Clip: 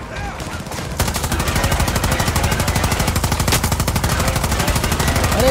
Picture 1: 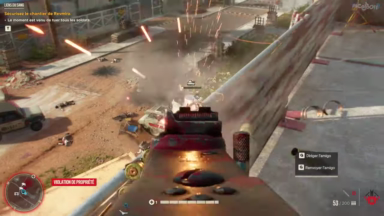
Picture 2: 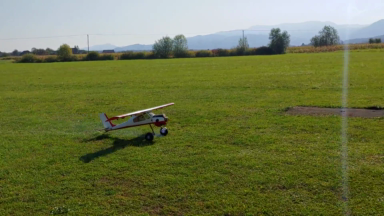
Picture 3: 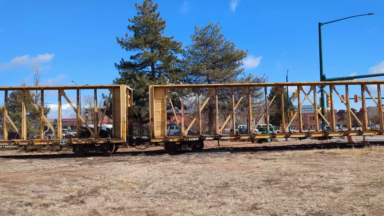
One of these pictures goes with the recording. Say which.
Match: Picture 1